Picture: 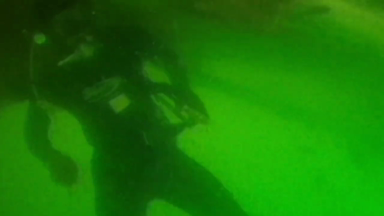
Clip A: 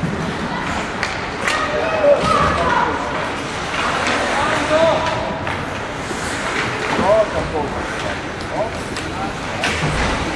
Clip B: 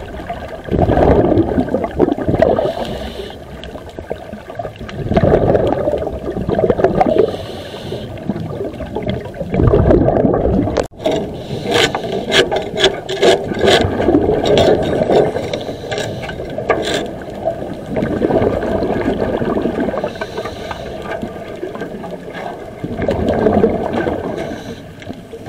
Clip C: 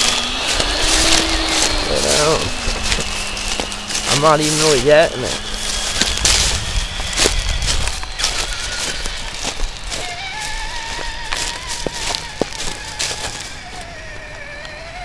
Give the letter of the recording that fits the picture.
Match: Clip B